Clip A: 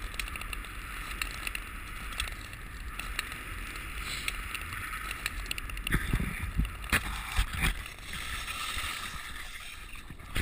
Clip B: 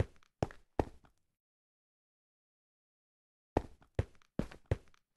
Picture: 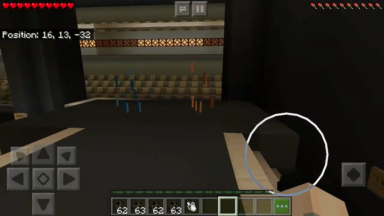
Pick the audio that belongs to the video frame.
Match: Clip B